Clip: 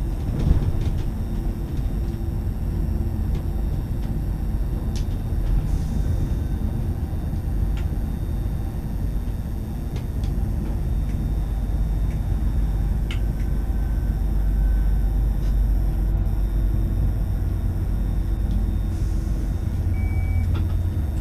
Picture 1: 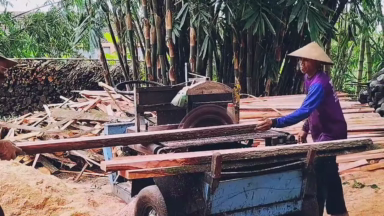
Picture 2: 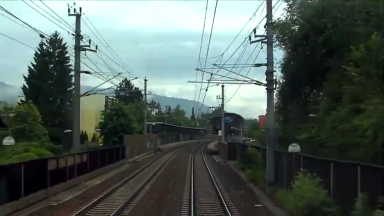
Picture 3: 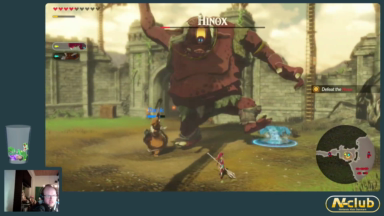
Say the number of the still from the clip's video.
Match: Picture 2